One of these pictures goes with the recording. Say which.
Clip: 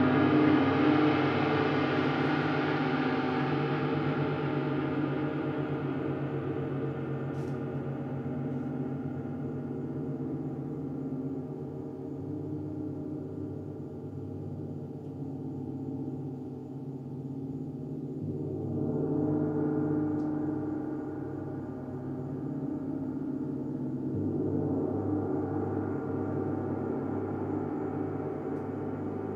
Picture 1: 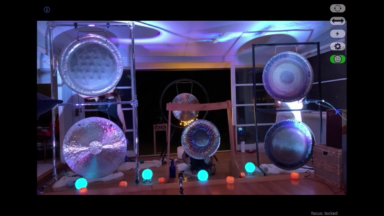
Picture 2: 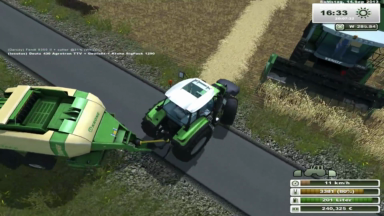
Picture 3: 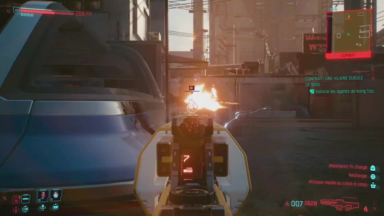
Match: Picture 1